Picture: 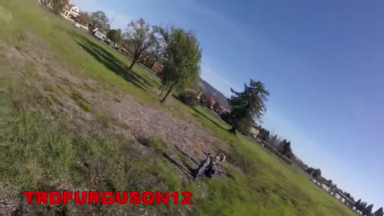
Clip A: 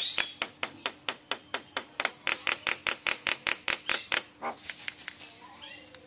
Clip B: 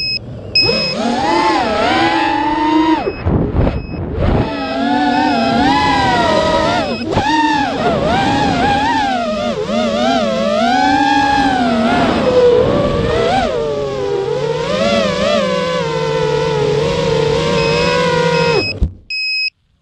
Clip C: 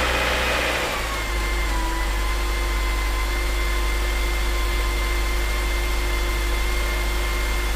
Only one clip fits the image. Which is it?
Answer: B